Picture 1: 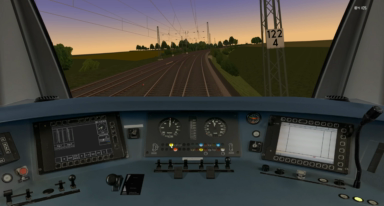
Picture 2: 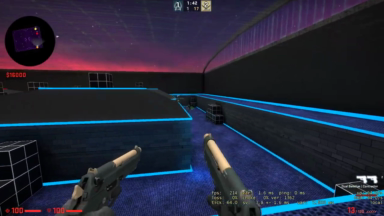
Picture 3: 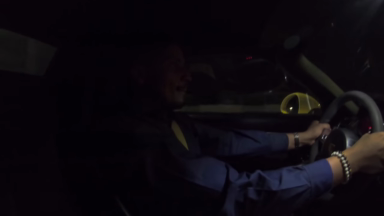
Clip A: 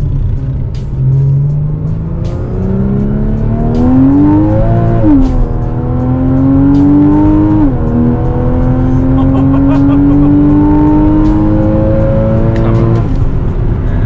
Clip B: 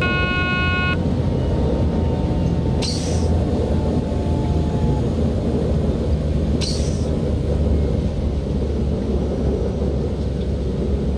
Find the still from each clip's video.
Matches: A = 3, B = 1